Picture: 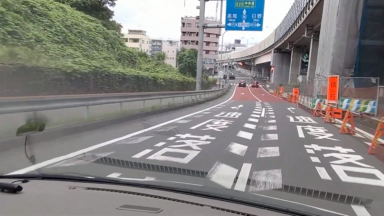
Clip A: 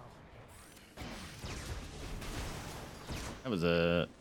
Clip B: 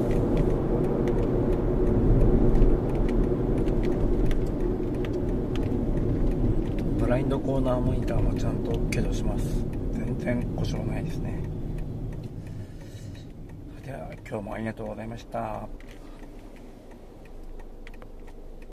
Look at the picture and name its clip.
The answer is B